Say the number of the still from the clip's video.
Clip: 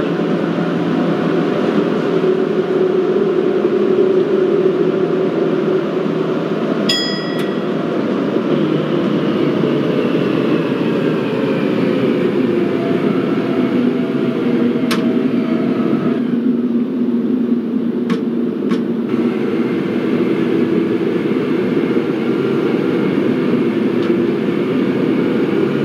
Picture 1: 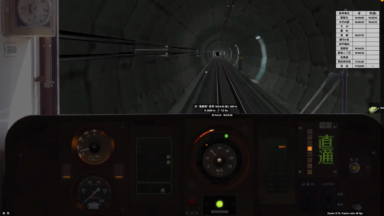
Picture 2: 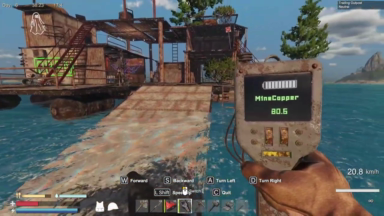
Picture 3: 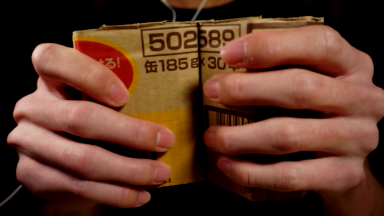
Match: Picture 1